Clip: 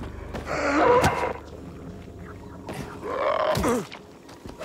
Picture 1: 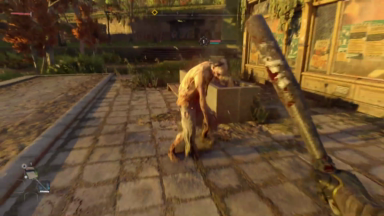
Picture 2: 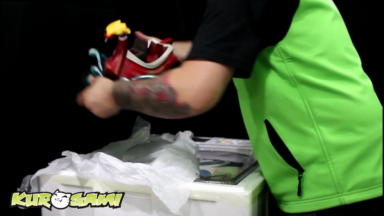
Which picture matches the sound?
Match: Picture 1